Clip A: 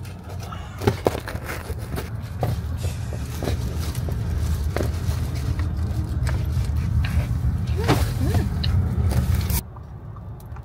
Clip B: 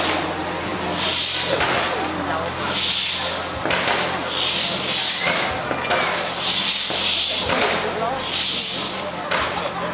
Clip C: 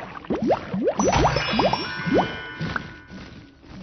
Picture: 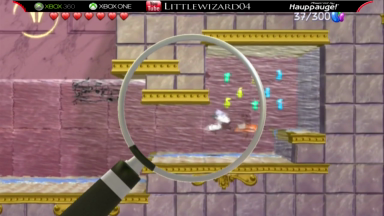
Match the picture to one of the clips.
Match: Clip C